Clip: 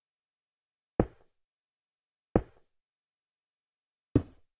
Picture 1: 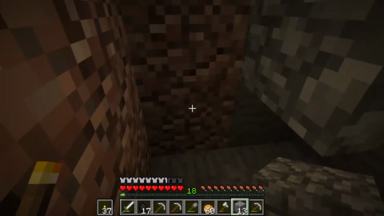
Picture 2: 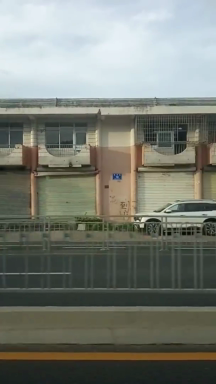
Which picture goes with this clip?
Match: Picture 1